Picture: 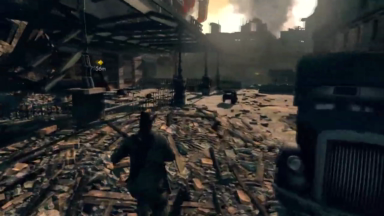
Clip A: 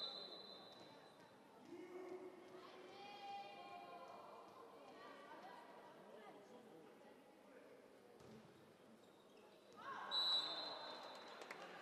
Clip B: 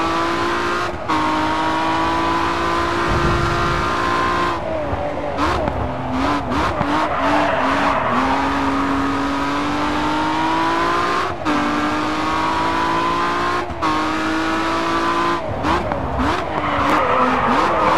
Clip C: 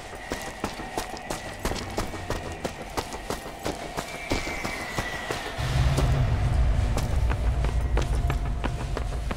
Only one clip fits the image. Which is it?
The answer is C